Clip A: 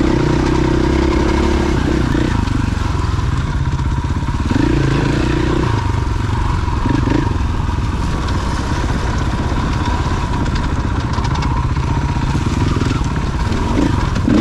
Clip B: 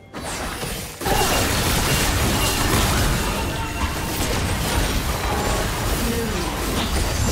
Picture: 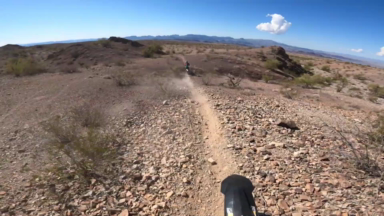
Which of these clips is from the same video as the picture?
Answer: A